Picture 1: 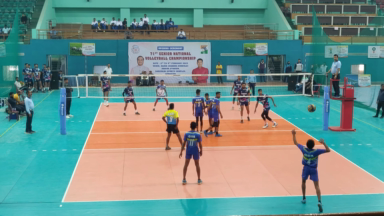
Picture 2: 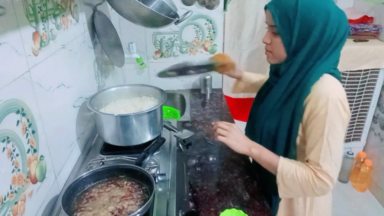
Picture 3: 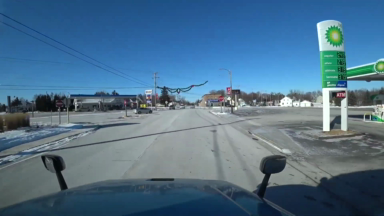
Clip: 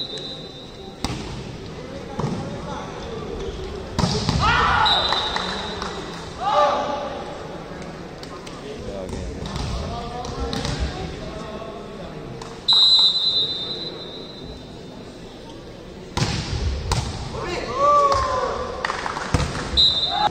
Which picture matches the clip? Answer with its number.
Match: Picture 1